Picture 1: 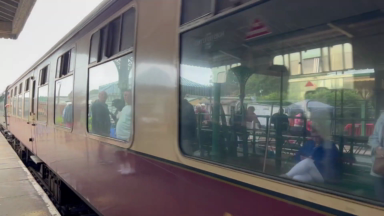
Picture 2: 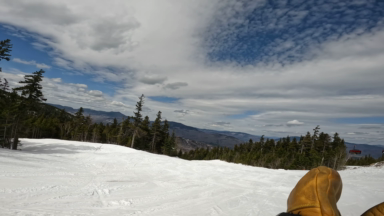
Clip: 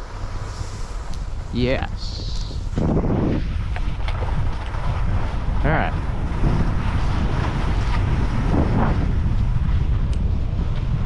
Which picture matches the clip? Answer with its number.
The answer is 2